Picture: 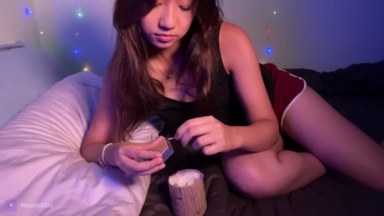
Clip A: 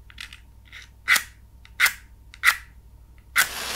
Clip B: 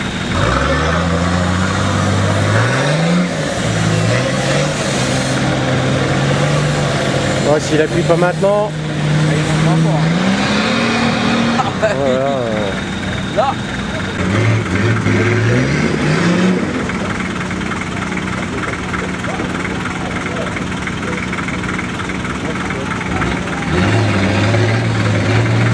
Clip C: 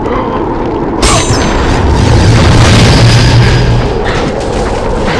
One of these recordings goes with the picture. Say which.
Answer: A